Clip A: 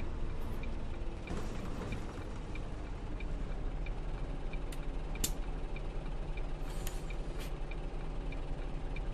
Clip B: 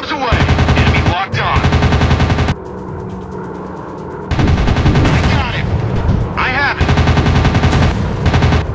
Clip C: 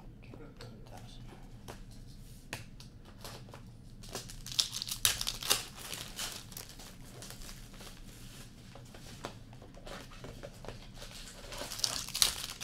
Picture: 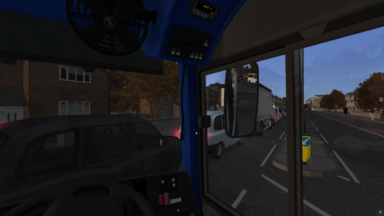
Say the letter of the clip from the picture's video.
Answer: A